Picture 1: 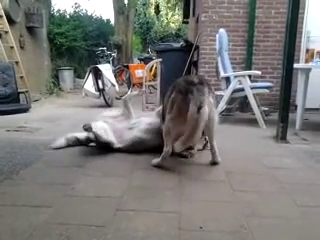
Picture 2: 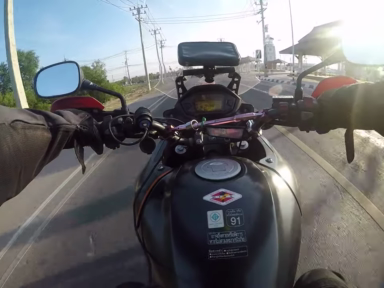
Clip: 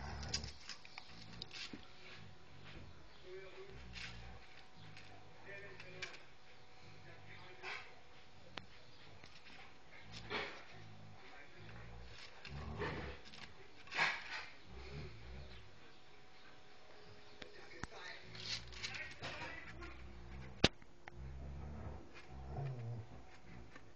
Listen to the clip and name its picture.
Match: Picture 1